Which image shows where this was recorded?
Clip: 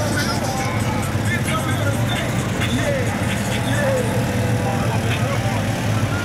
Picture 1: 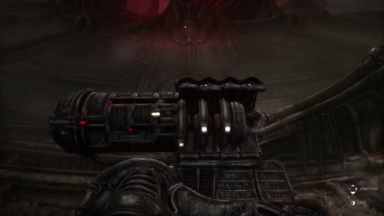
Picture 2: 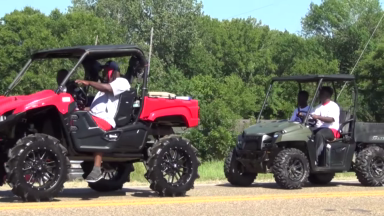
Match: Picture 2